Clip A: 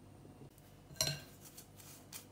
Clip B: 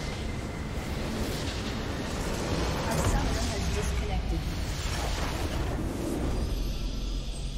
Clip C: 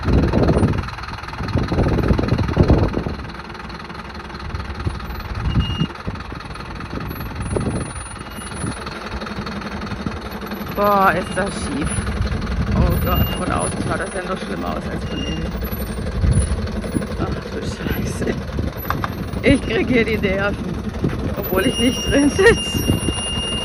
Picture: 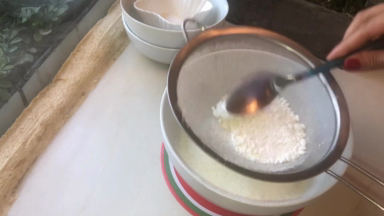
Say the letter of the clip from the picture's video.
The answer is A